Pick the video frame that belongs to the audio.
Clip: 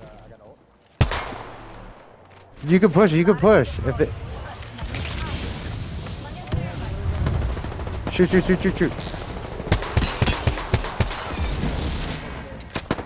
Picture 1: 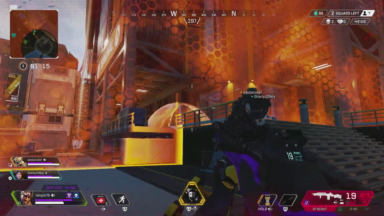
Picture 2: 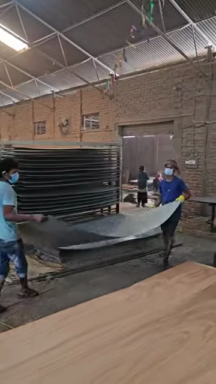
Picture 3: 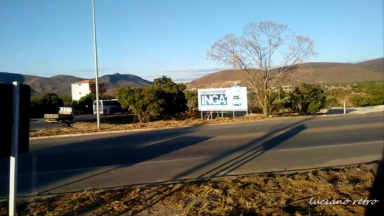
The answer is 1